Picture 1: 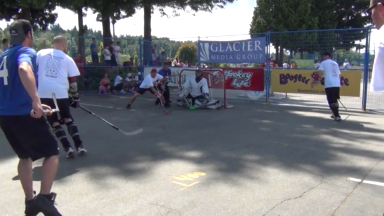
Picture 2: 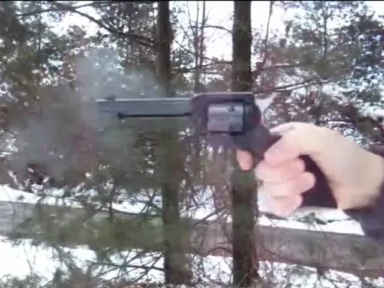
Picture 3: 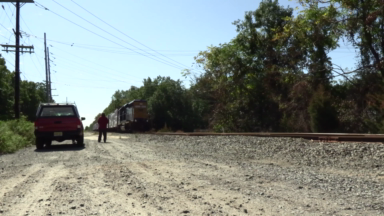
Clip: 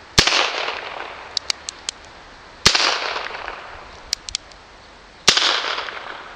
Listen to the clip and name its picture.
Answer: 2